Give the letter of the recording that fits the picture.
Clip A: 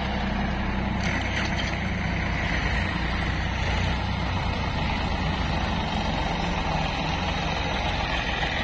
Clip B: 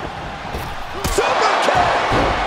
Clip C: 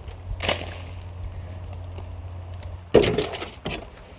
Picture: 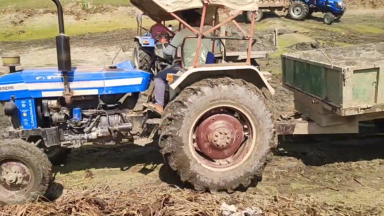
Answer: A